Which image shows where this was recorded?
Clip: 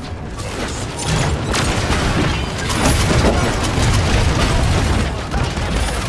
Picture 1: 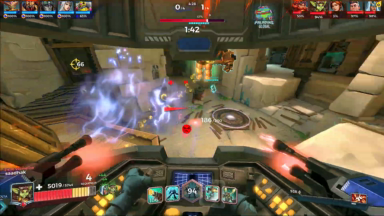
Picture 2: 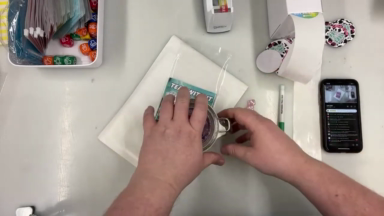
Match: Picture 1